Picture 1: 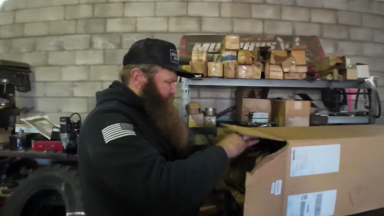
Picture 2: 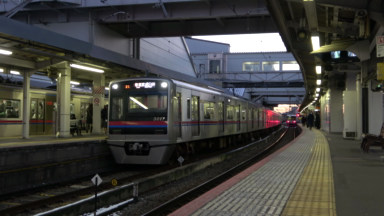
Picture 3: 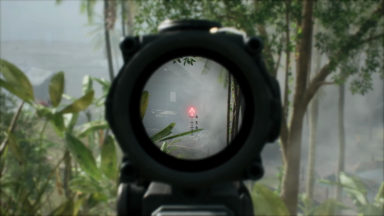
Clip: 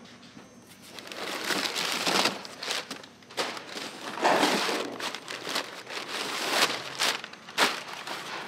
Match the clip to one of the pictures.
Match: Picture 1